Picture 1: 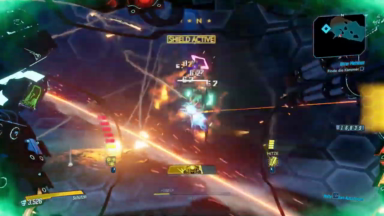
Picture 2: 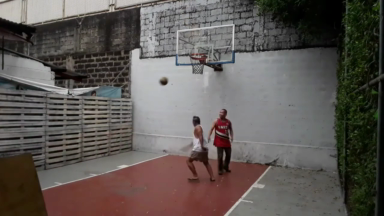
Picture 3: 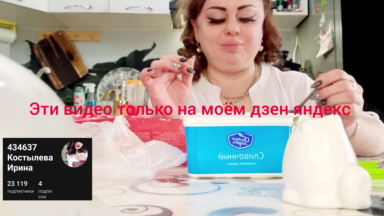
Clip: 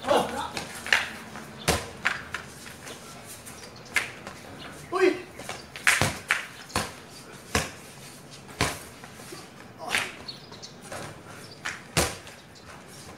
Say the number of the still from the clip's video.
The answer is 2